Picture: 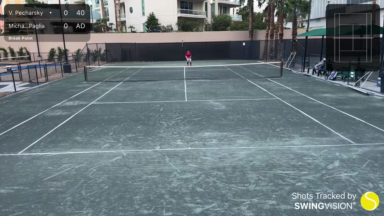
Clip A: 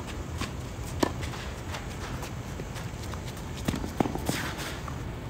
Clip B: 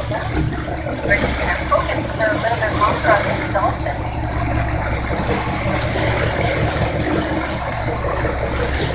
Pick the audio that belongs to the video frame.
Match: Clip A